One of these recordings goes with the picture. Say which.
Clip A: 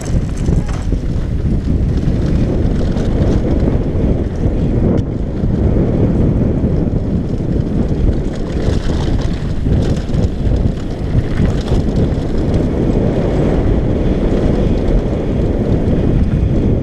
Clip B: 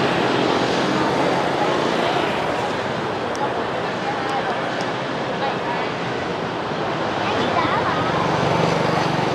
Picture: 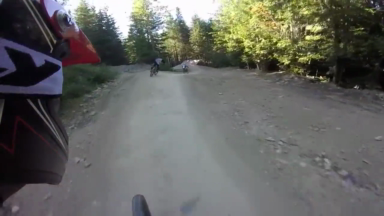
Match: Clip A